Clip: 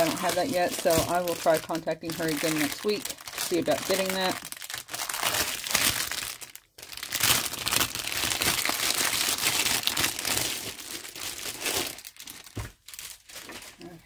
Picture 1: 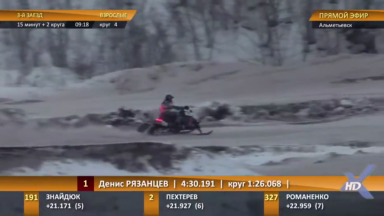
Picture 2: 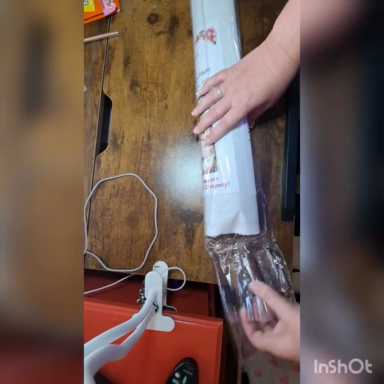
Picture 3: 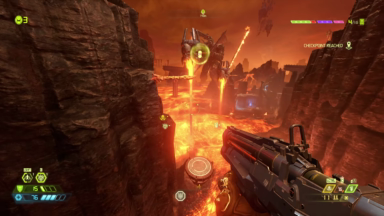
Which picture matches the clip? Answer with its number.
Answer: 2